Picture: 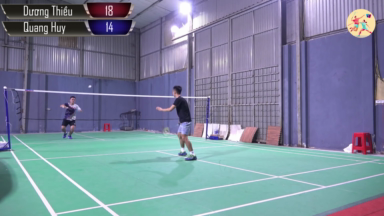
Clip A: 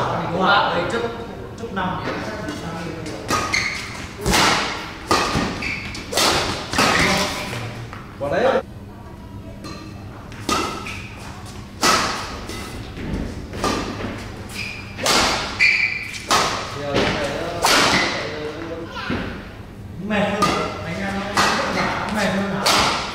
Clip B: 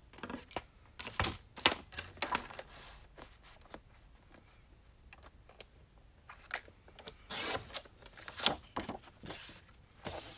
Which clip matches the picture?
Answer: A